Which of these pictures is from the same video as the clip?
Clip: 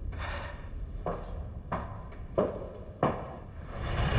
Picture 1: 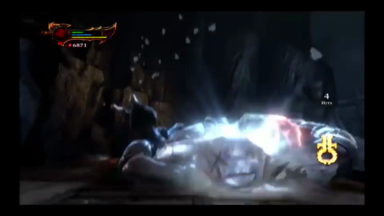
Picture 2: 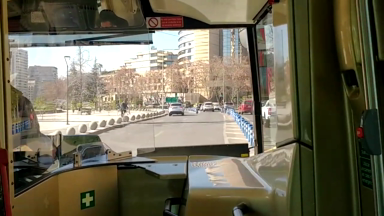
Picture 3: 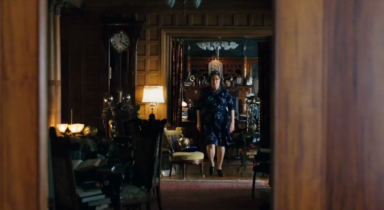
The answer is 3